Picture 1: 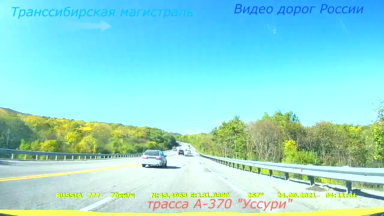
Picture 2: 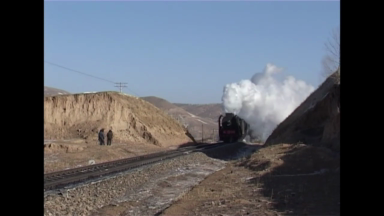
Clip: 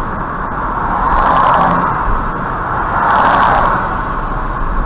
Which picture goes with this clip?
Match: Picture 1